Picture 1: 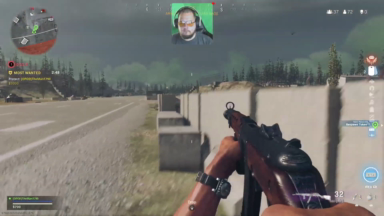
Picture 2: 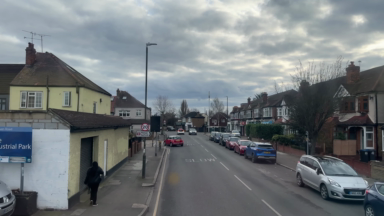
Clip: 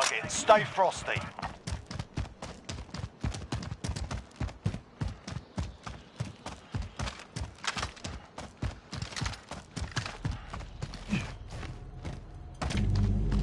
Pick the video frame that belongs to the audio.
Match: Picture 1